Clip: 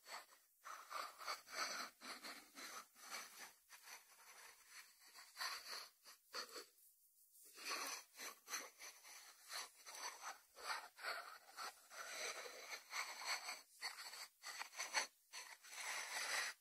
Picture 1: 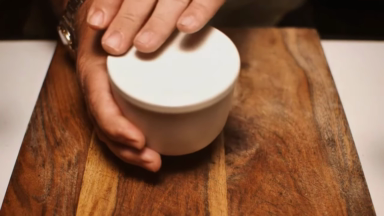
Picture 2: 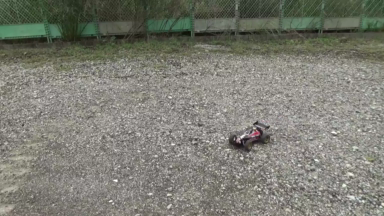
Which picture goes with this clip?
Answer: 1